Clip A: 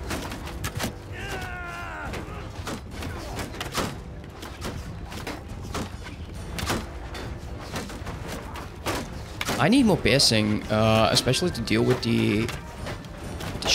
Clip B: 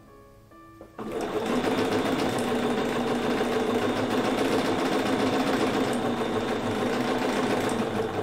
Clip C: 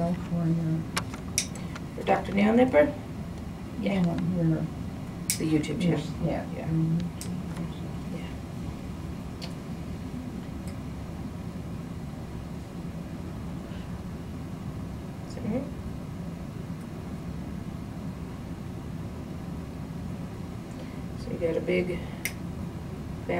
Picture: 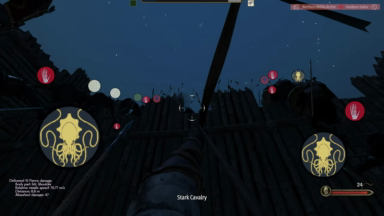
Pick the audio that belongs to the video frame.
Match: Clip A